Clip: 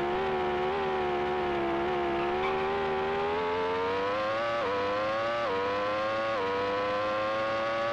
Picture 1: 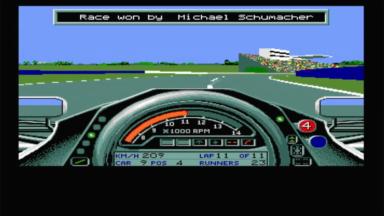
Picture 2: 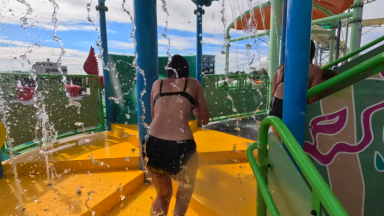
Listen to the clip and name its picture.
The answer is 1